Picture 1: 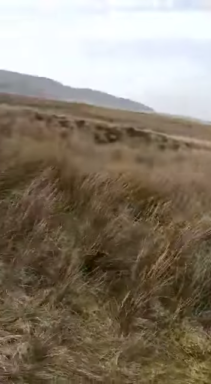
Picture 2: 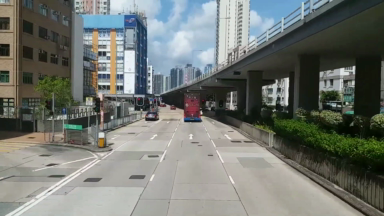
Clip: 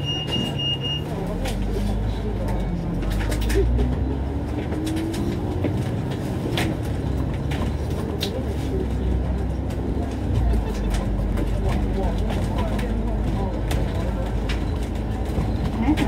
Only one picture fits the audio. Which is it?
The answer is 2